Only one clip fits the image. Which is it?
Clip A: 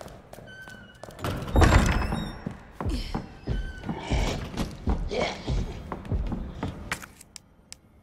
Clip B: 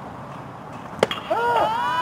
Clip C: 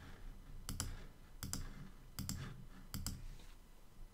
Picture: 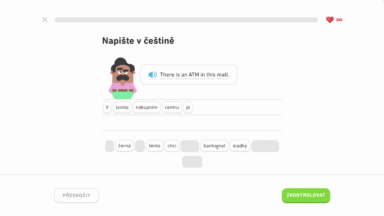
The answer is C